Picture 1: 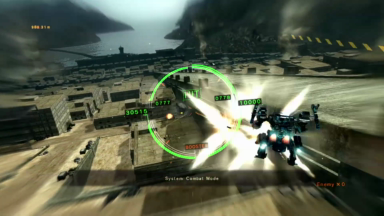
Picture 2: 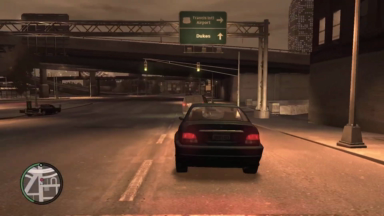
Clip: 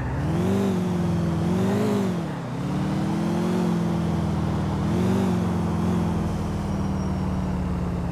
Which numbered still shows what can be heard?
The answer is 2